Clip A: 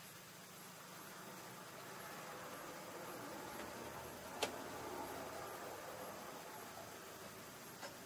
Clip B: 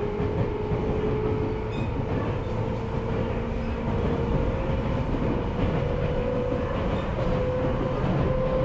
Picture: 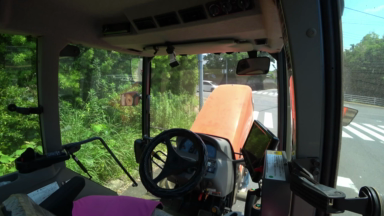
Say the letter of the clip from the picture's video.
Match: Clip A